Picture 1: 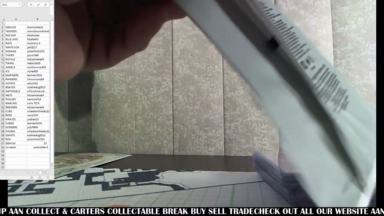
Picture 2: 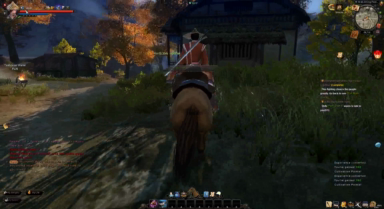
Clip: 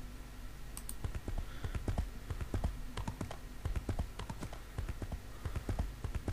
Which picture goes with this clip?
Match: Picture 2